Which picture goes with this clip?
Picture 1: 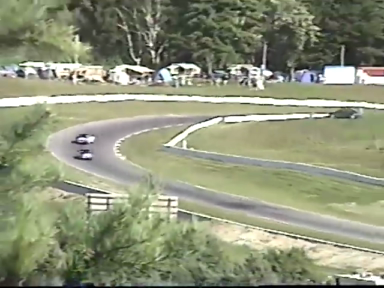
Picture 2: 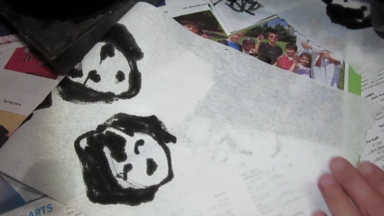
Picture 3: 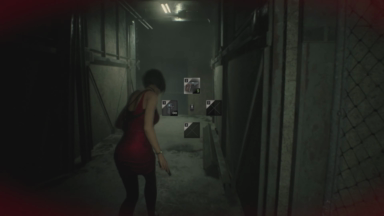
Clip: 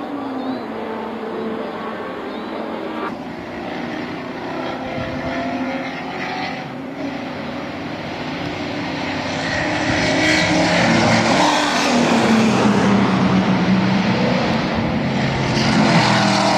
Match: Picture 1